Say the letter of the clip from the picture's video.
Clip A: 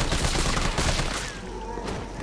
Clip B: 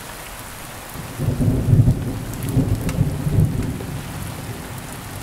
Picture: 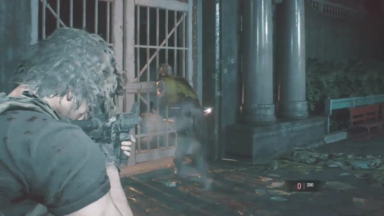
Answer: A